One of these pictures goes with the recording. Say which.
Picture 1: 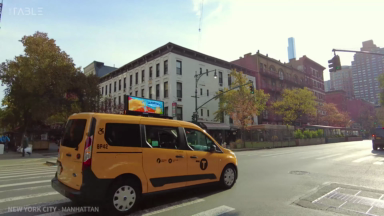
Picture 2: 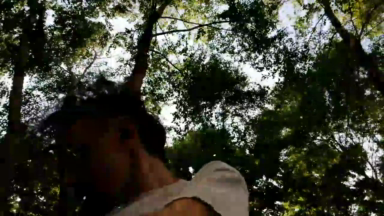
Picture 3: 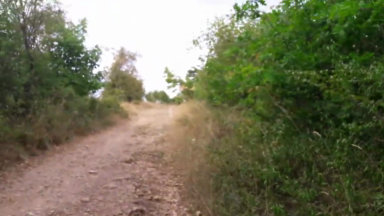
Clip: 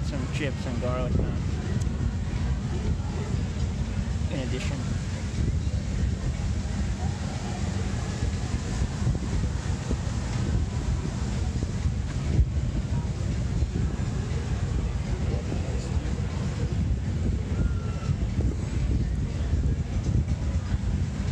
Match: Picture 2